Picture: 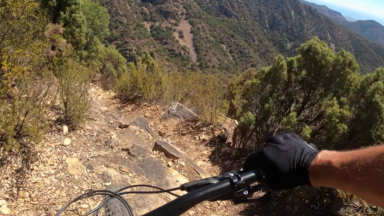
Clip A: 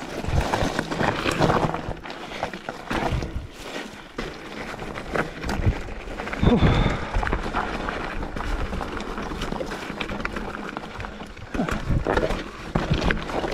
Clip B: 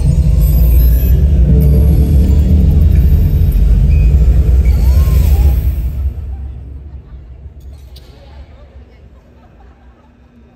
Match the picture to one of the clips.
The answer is A